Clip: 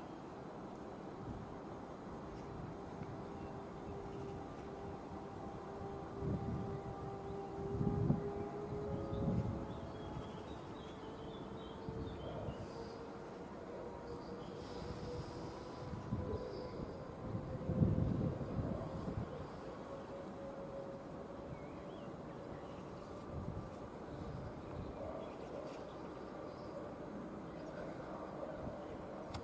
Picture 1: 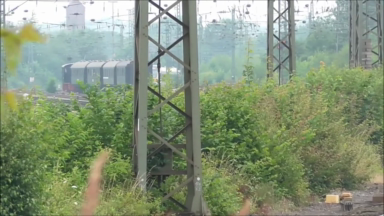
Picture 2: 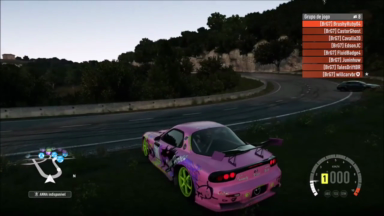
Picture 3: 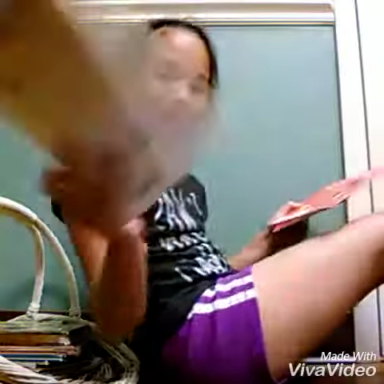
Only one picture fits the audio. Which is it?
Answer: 1